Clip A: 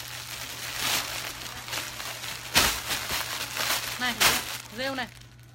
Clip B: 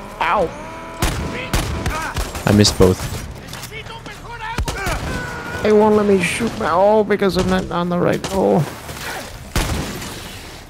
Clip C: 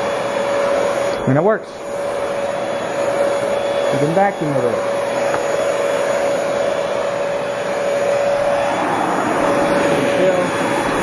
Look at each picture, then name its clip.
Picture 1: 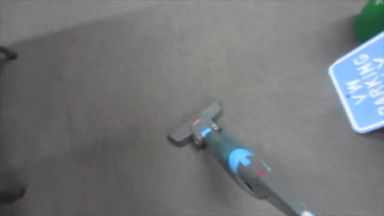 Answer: C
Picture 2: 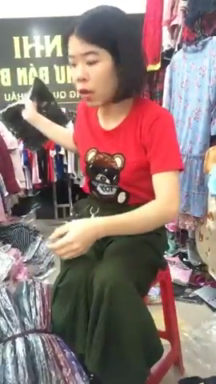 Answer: A